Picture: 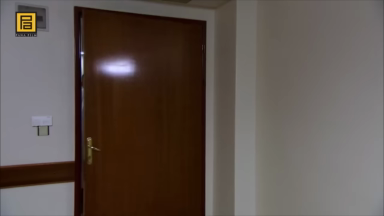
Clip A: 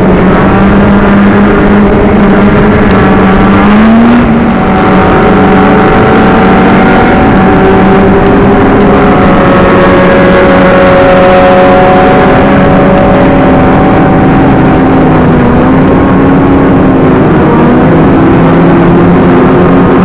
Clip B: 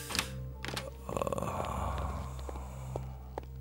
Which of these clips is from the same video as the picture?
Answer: B